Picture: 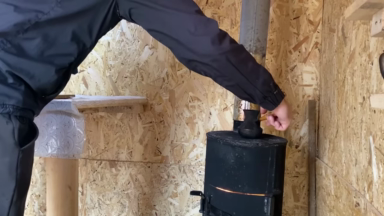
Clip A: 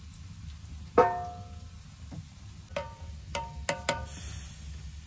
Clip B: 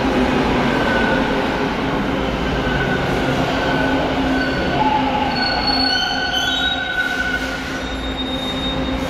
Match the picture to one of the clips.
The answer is A